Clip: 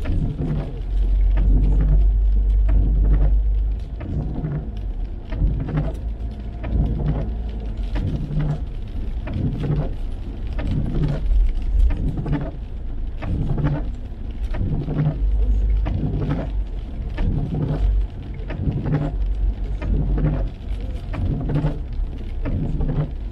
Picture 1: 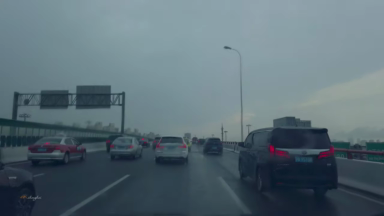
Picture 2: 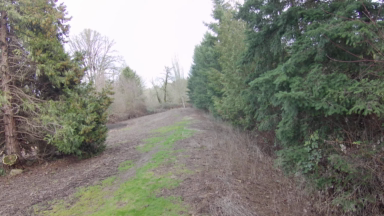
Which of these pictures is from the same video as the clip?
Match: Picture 1